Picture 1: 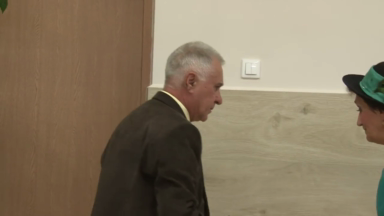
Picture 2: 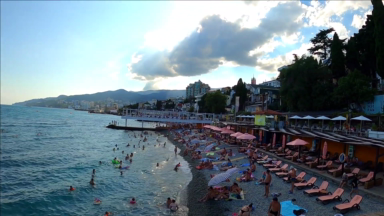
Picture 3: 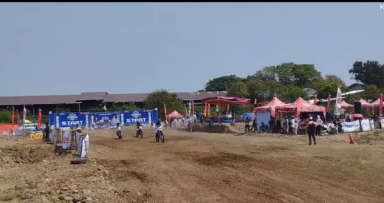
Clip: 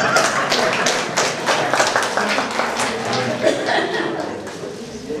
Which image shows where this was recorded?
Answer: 1